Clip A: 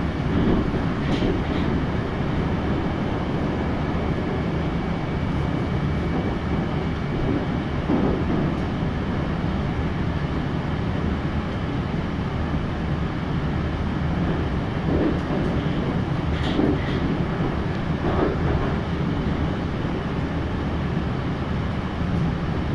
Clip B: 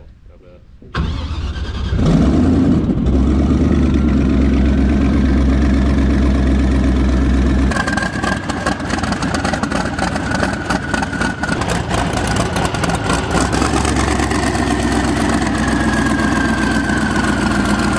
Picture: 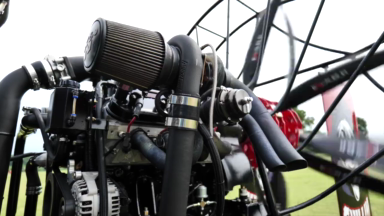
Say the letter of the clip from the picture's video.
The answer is B